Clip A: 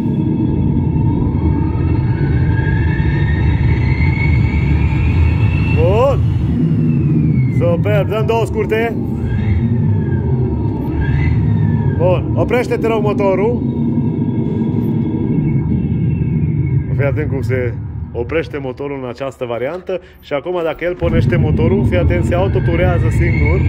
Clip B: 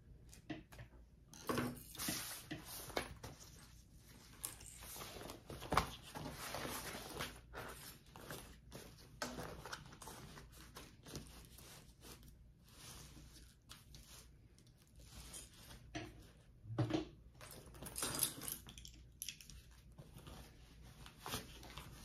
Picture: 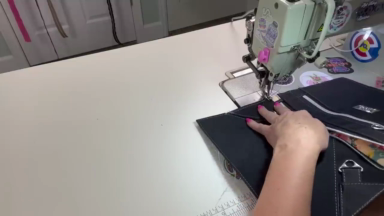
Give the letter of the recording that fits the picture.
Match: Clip B